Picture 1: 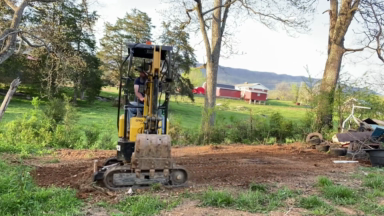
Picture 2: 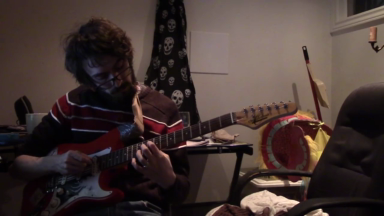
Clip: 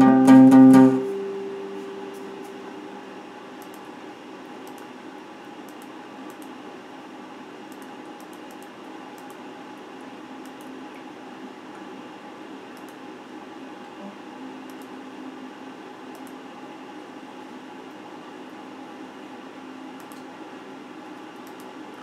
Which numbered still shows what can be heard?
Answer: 2